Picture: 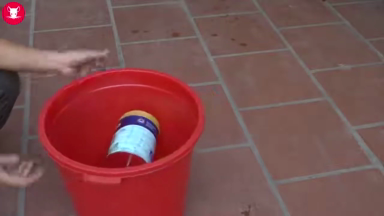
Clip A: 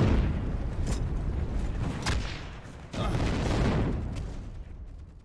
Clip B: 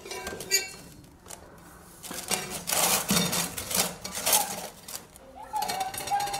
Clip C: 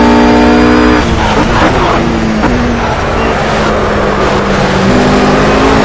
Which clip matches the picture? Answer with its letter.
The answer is B